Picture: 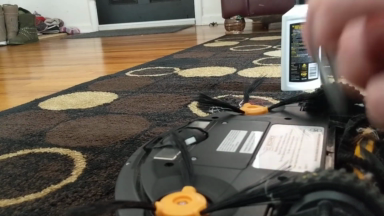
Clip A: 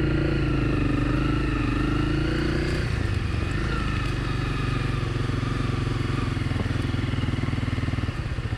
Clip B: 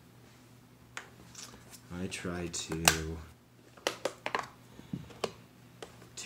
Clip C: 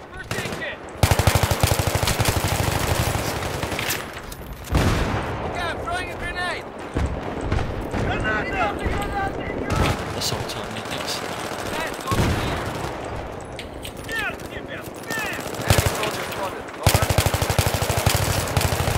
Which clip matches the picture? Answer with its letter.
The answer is B